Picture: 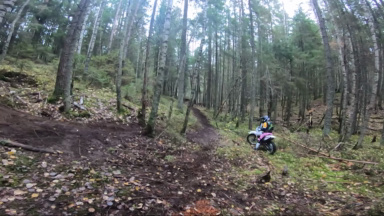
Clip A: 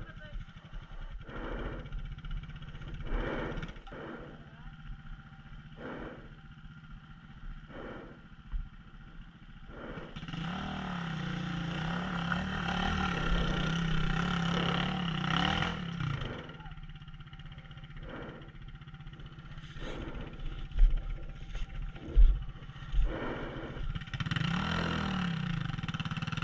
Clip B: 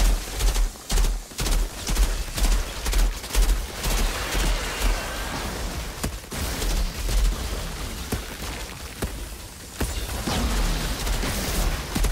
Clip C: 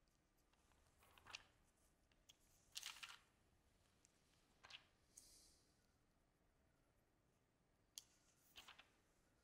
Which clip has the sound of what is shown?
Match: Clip A